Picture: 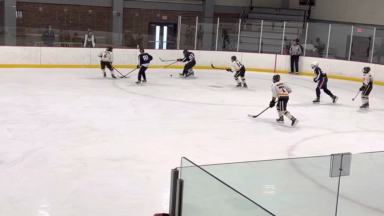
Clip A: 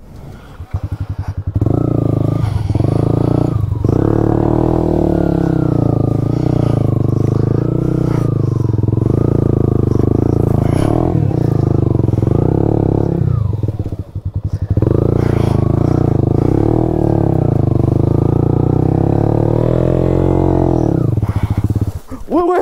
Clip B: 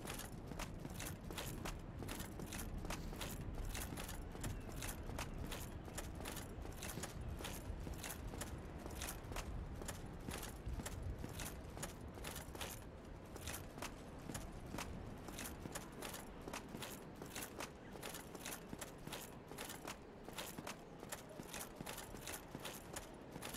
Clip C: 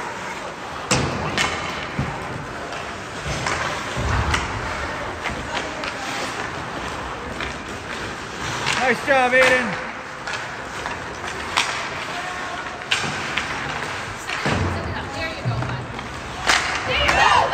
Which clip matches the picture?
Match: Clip C